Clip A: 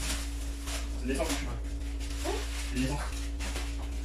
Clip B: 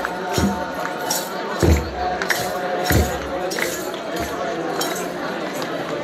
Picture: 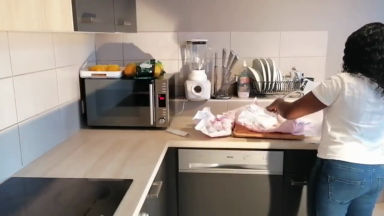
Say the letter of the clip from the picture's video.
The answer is A